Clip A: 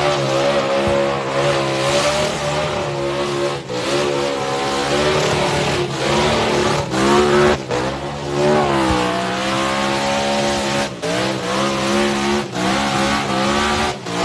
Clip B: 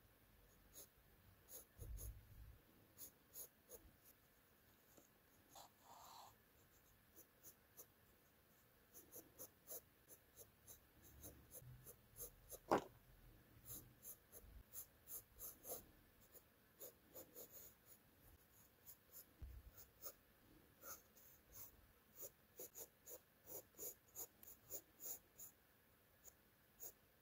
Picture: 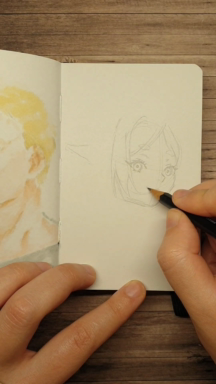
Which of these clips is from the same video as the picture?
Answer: B